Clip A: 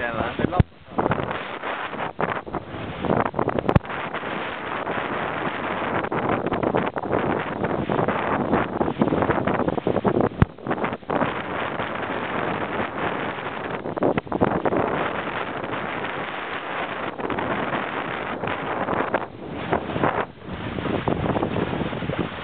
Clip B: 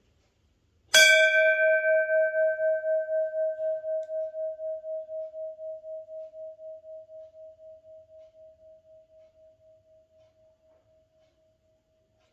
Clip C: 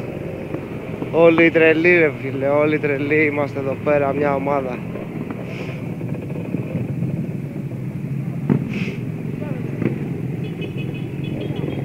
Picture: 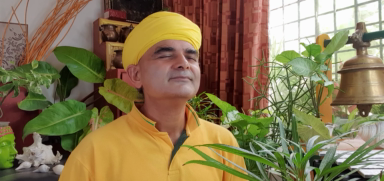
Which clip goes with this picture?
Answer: B